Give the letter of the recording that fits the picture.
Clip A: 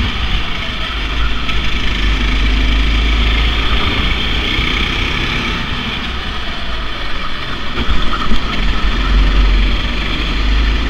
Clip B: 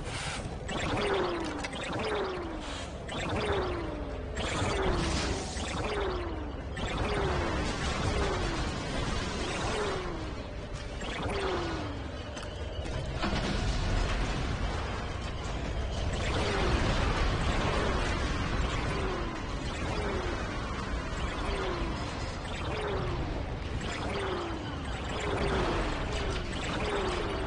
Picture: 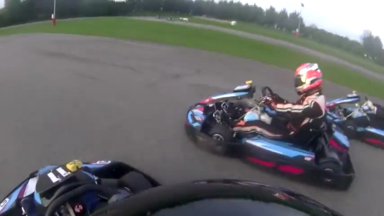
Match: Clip A